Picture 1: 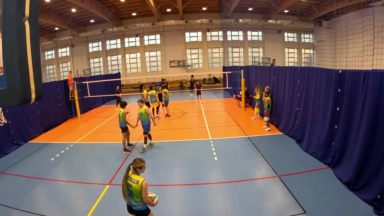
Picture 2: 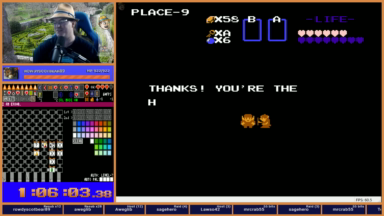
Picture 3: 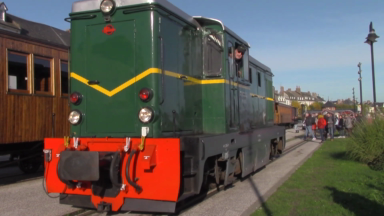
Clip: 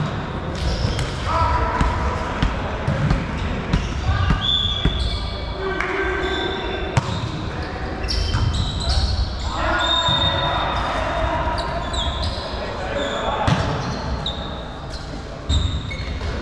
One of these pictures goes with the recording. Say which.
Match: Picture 1